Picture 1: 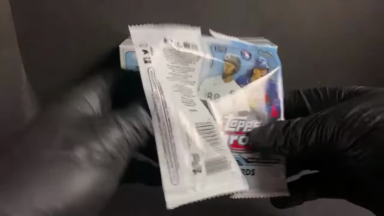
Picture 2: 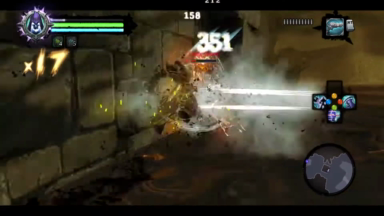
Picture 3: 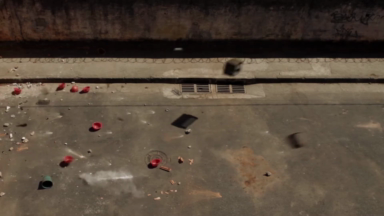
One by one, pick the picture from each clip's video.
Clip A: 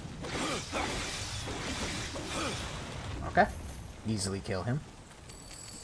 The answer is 2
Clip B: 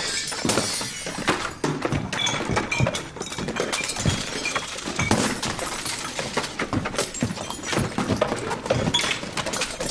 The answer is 3